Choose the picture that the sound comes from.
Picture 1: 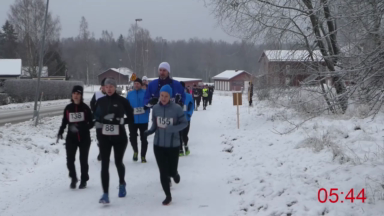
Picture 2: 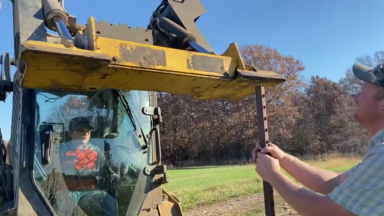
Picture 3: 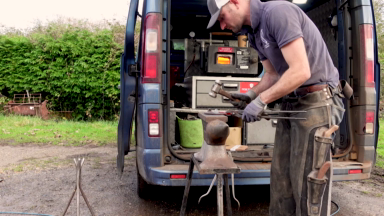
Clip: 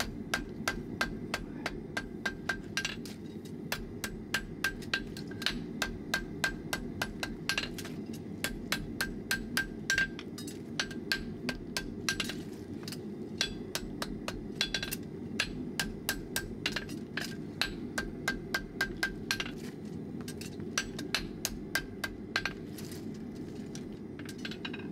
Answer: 3